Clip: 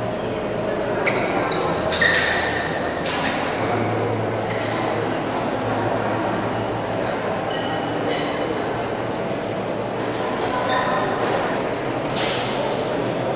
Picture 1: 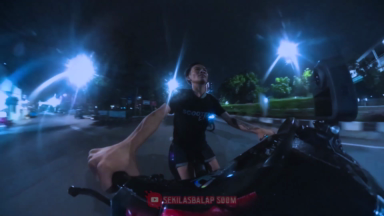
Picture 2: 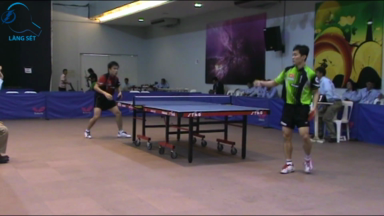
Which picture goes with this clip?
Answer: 2